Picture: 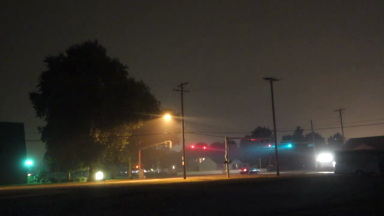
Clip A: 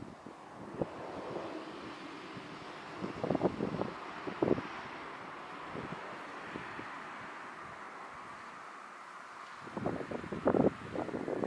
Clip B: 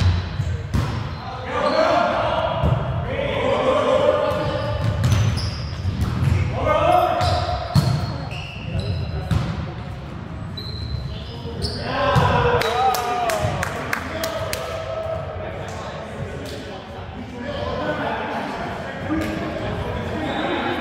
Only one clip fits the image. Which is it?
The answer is A